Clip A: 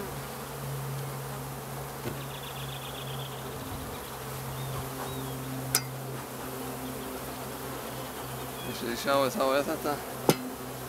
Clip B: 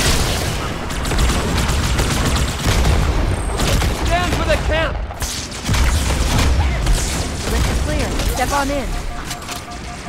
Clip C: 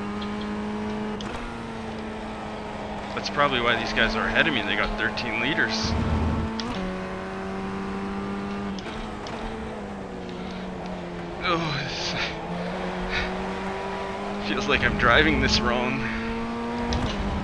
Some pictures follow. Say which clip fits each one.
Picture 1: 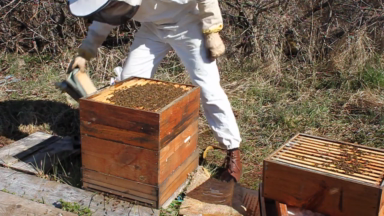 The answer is A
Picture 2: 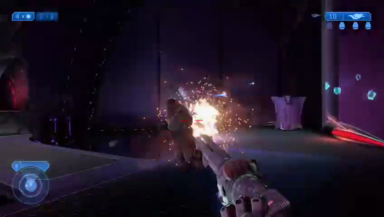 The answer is B